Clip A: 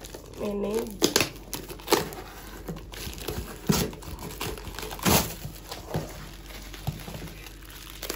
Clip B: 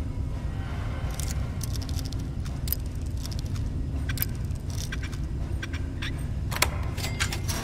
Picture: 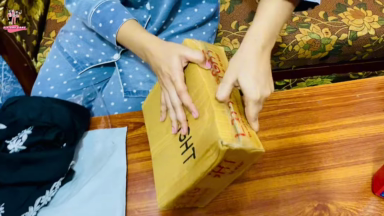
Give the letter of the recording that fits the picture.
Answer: A